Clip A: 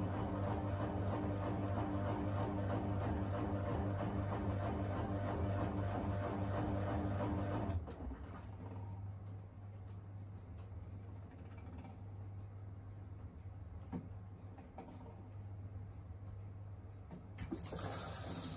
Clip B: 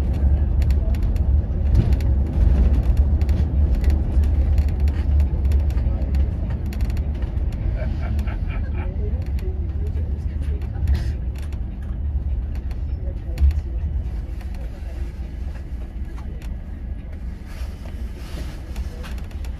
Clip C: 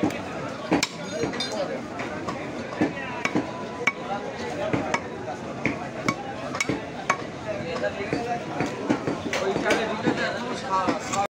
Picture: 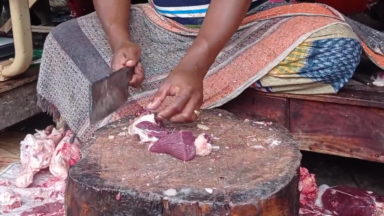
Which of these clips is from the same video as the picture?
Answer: C